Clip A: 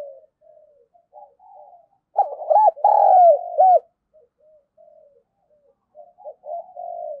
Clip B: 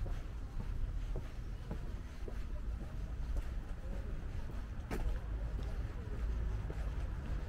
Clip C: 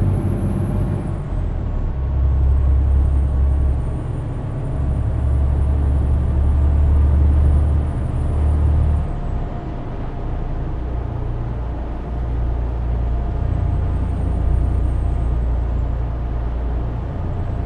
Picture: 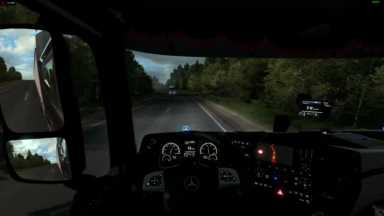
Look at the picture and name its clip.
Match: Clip C